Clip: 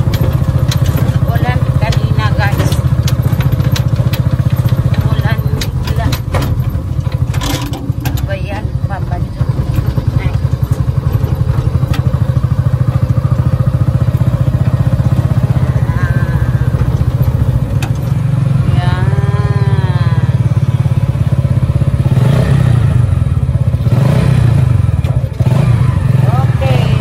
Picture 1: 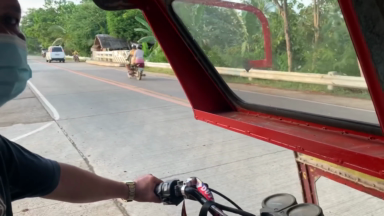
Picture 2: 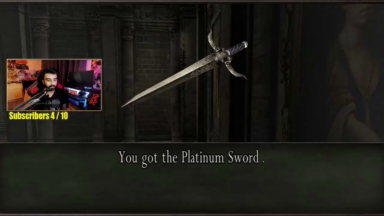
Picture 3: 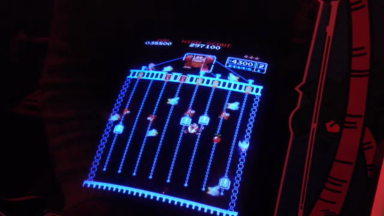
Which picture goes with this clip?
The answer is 1